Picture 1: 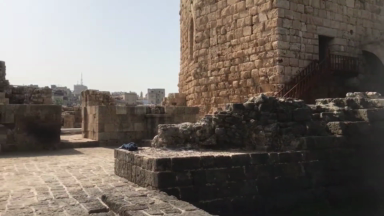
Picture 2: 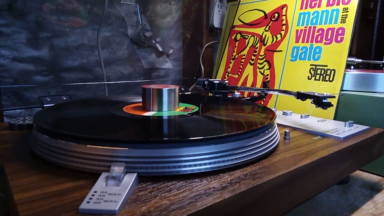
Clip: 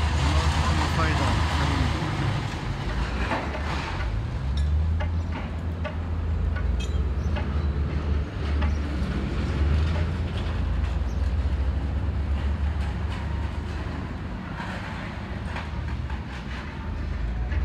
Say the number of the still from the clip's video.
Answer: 1